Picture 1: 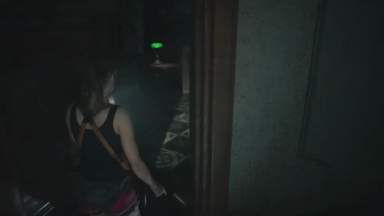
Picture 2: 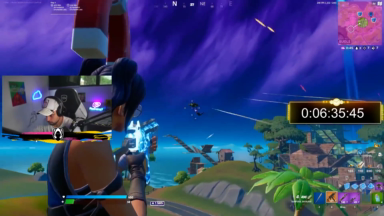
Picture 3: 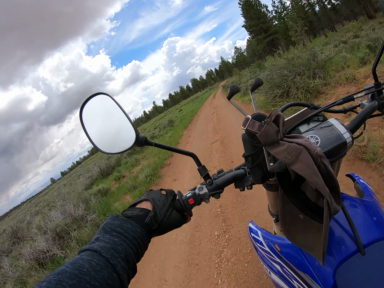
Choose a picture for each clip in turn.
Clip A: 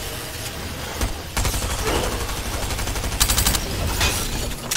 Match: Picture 2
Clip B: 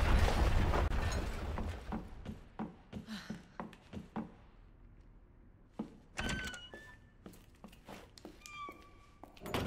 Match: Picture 1